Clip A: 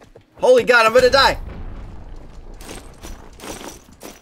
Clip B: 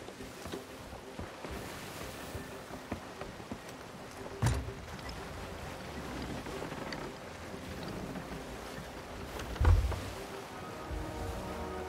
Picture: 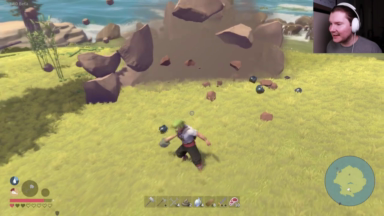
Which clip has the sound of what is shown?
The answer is A